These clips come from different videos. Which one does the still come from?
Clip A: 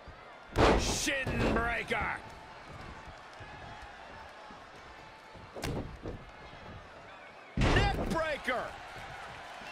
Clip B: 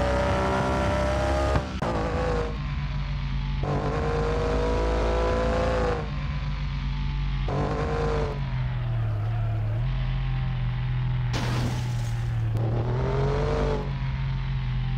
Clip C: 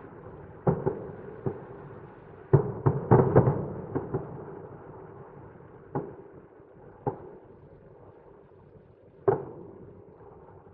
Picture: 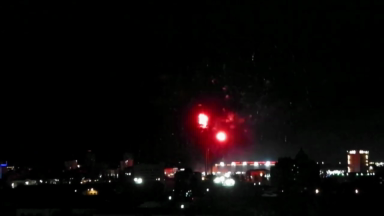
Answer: C